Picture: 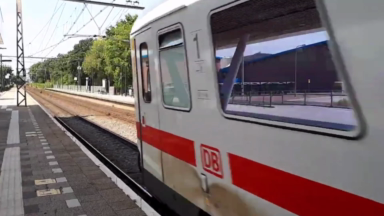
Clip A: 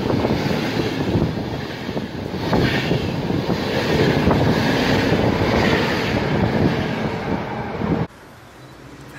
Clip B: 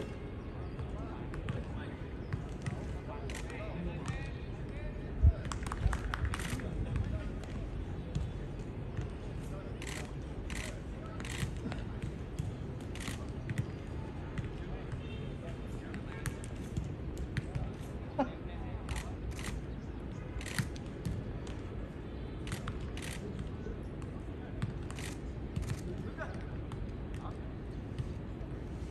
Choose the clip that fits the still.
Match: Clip A